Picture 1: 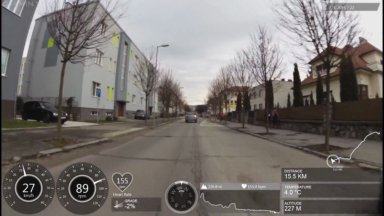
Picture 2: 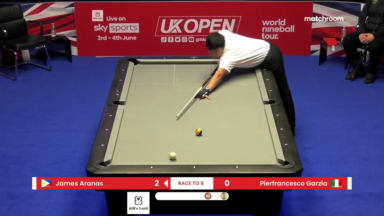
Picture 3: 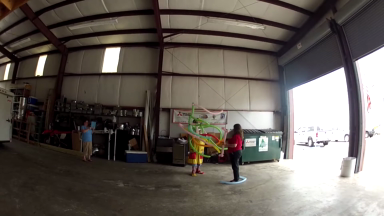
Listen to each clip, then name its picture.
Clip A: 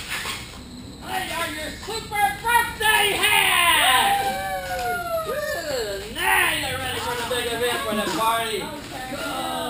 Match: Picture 3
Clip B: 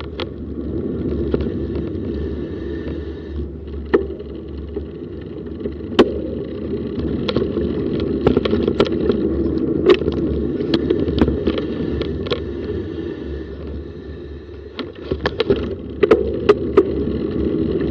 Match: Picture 1